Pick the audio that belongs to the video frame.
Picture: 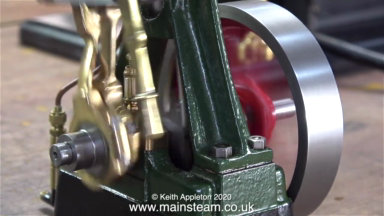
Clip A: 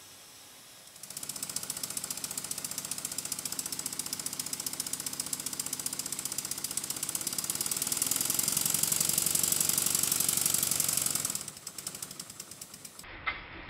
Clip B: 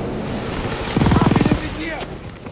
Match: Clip A